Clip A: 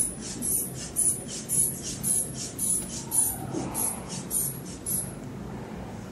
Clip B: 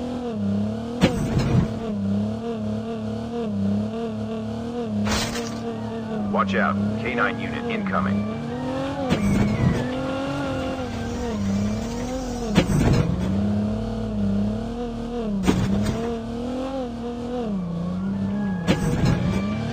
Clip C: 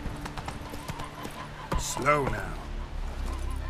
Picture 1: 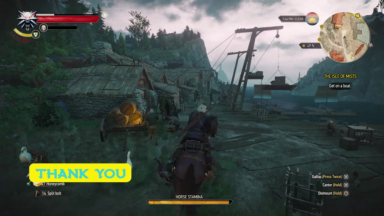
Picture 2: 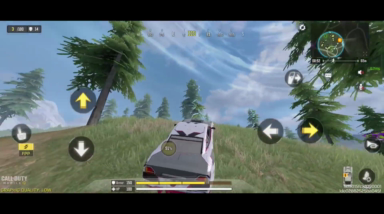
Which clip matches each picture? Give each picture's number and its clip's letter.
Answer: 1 C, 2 B